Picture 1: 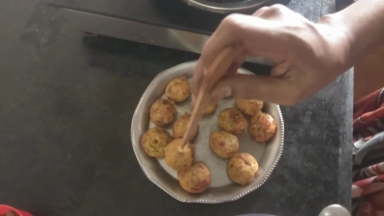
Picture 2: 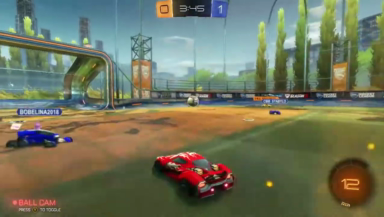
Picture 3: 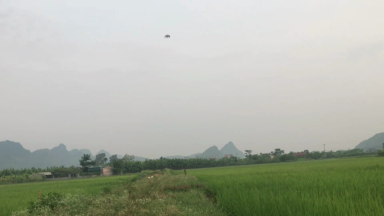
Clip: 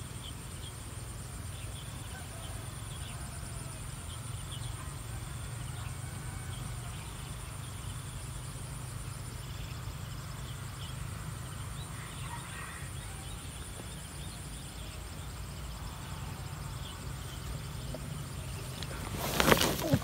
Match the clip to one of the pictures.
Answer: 3